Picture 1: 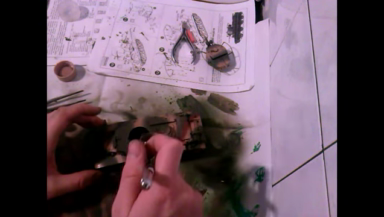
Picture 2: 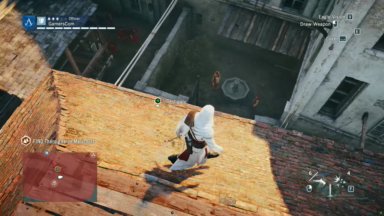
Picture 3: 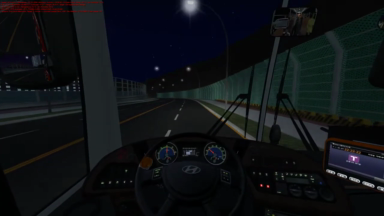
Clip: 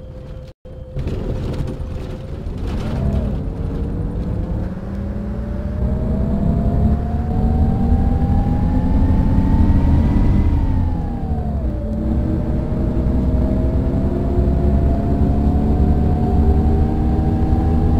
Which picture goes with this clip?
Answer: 3